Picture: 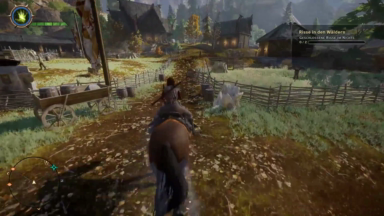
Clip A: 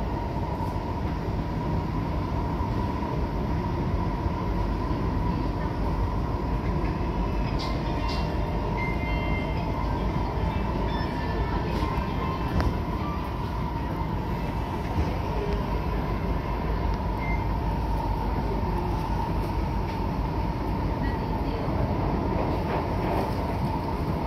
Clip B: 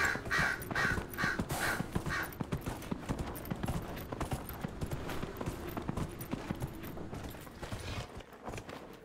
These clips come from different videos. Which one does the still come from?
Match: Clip B